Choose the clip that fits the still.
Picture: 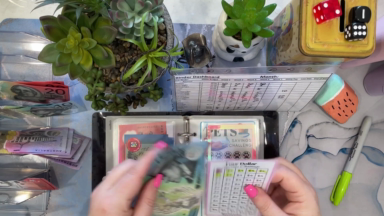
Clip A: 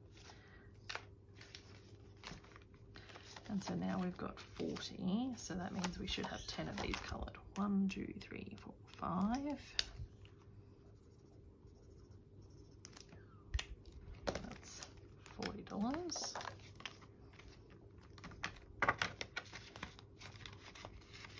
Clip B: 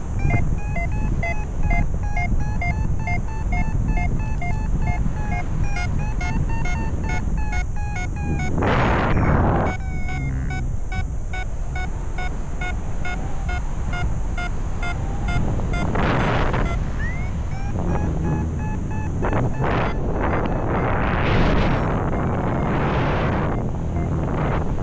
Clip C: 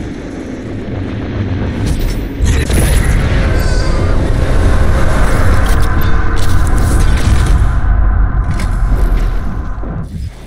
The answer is A